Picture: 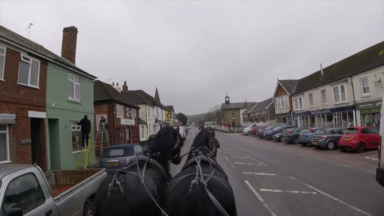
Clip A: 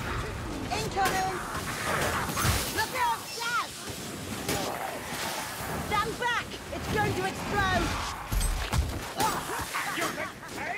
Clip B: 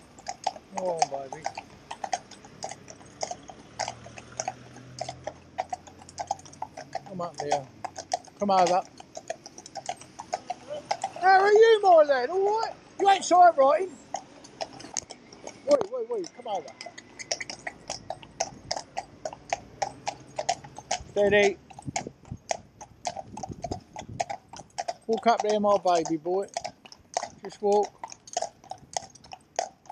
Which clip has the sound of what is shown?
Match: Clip B